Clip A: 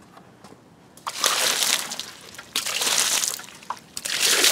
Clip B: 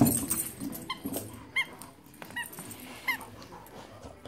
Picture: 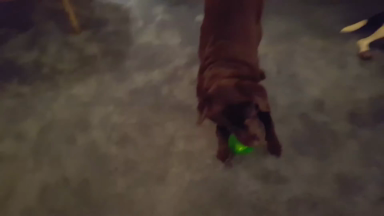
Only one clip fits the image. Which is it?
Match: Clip B